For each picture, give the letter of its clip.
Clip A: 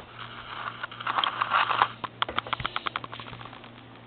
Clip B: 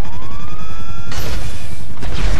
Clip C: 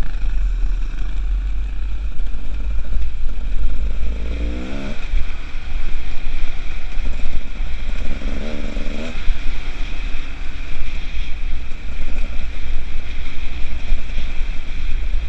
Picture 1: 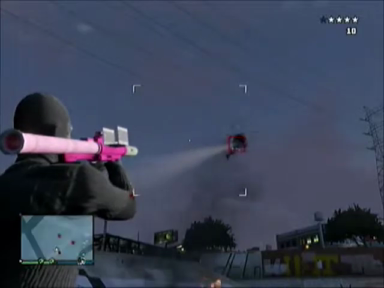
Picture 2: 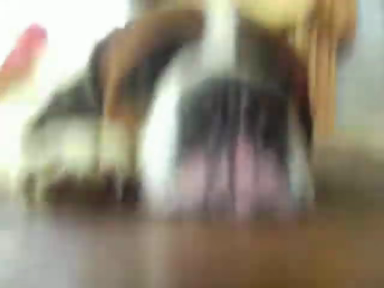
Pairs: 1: B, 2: A